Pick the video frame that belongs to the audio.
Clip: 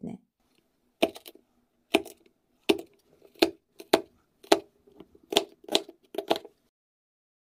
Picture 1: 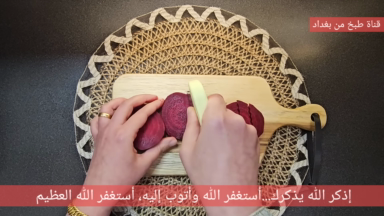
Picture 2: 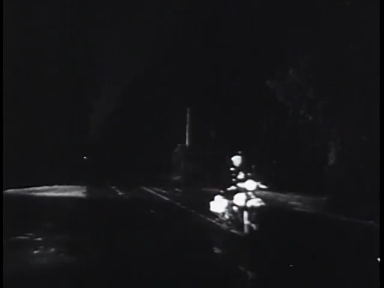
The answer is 1